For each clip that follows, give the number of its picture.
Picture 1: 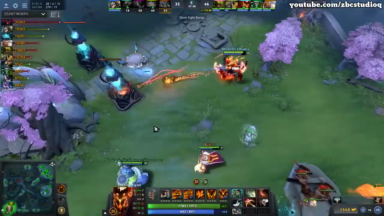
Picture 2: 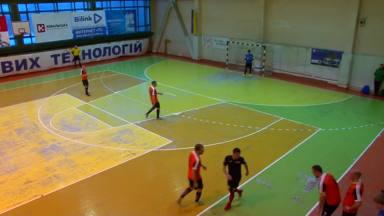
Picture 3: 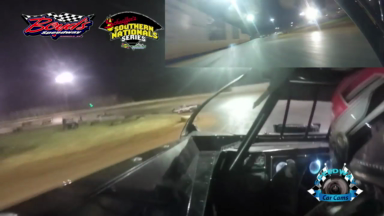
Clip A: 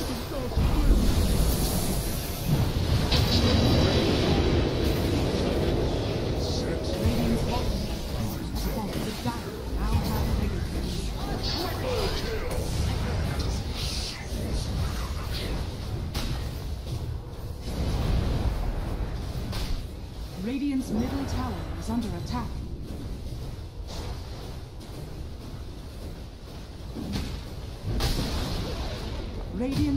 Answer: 1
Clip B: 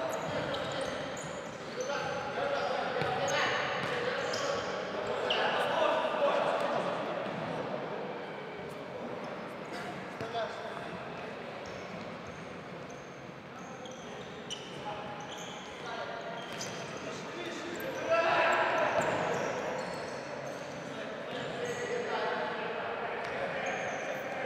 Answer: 2